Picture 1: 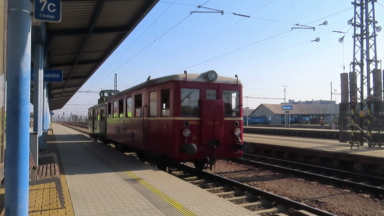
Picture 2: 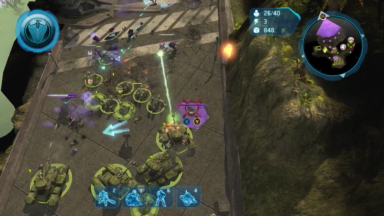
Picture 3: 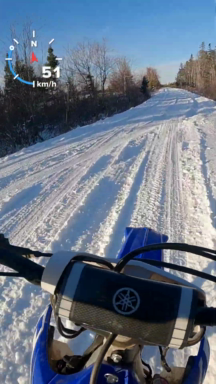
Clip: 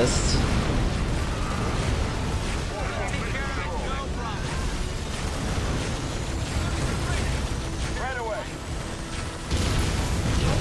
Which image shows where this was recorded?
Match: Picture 2